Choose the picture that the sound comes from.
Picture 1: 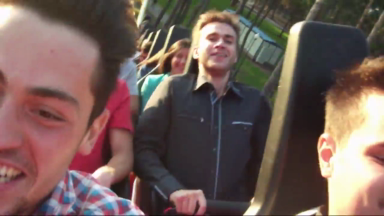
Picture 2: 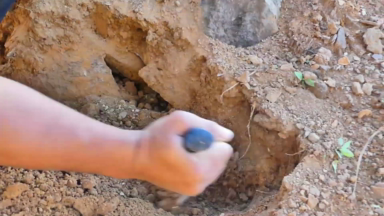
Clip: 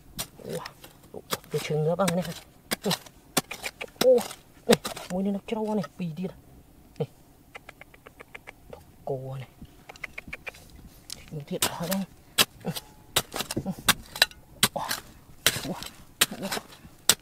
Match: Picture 2